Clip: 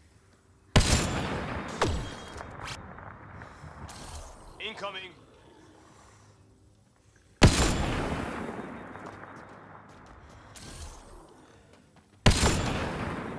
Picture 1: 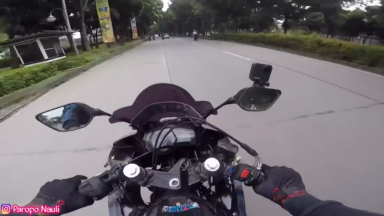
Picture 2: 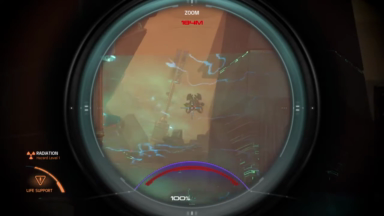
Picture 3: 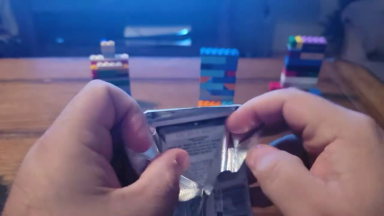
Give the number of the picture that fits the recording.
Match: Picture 2